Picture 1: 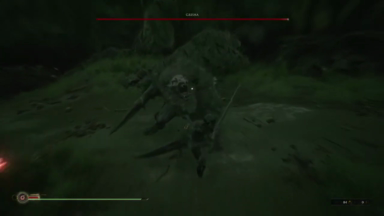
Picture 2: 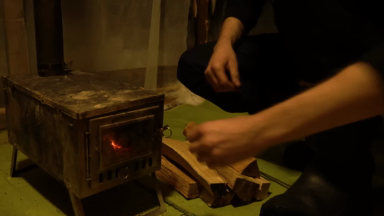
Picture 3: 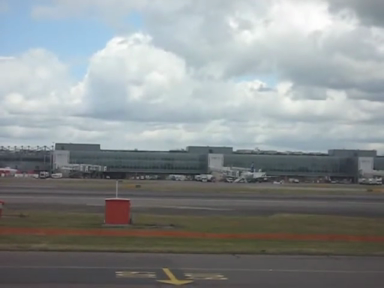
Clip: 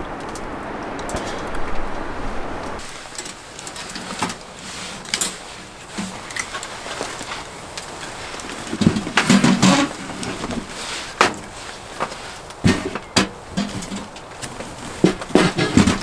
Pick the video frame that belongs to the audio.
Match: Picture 2